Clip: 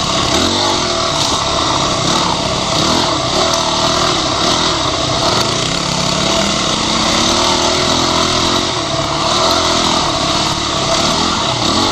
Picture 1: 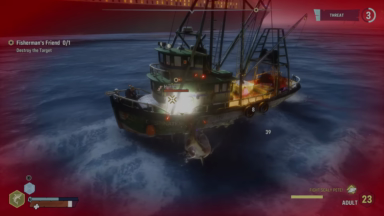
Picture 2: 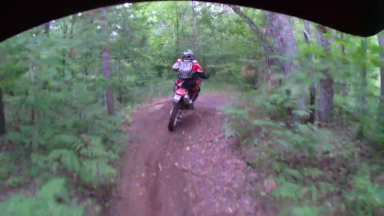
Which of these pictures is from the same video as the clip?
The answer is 2